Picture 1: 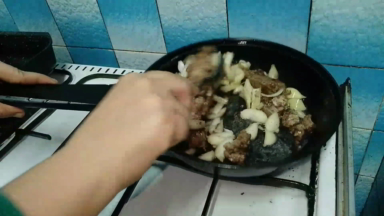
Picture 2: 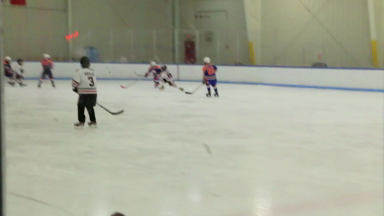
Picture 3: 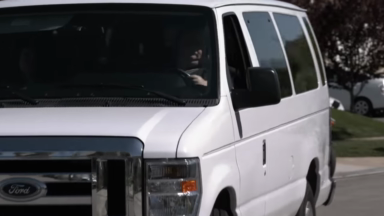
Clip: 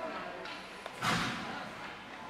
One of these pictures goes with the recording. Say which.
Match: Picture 2